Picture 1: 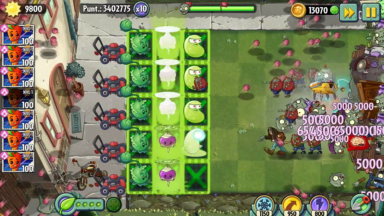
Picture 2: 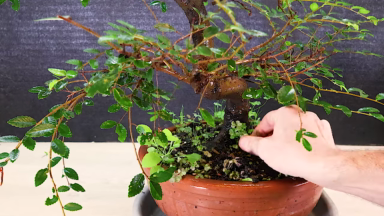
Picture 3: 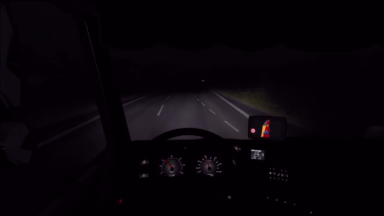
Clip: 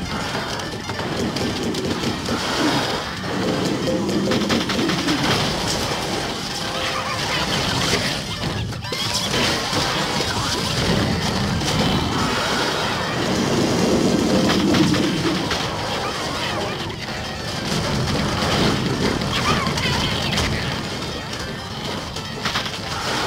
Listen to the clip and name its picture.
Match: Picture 1